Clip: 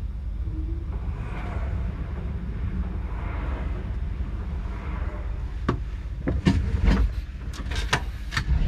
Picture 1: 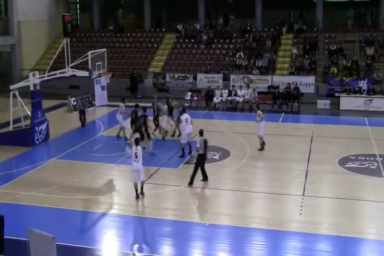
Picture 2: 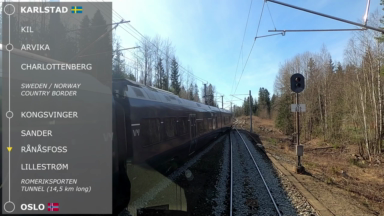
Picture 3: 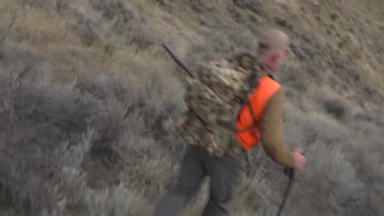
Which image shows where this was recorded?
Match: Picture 2